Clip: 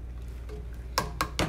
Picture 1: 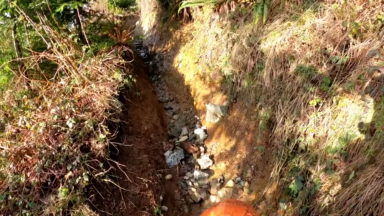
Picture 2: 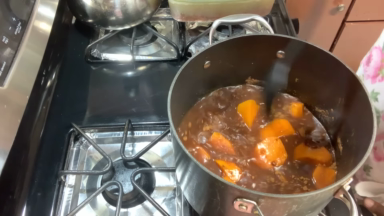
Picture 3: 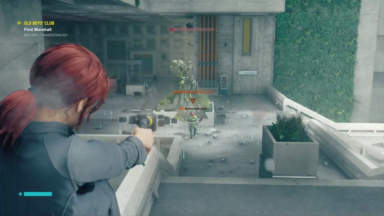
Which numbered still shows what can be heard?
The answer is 2